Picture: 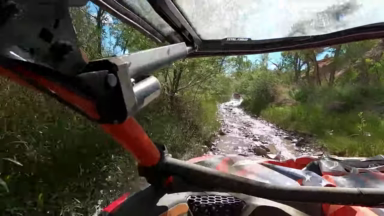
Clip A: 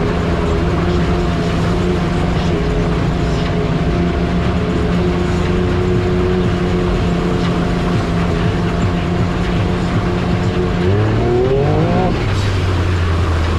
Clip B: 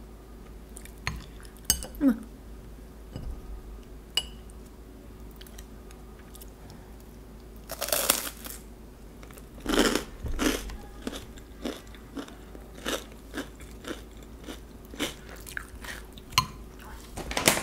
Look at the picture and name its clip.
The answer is A